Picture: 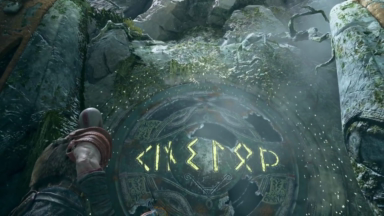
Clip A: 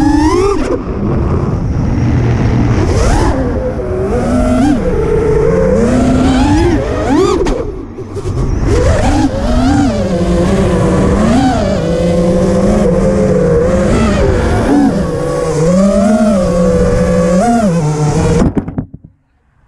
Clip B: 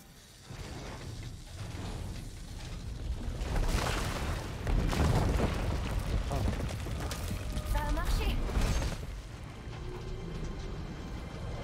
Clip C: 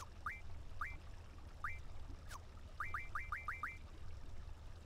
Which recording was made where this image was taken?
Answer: B